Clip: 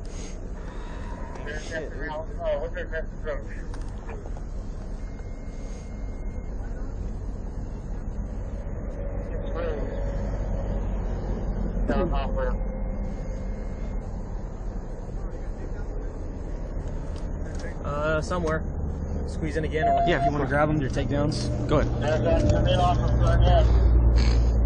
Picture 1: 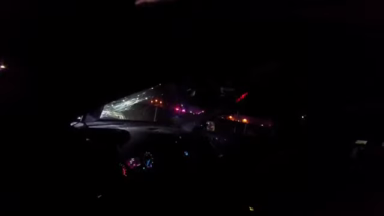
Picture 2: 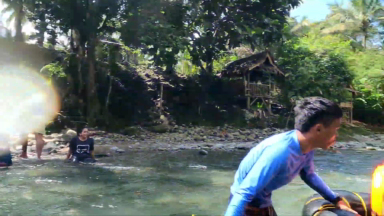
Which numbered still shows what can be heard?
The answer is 1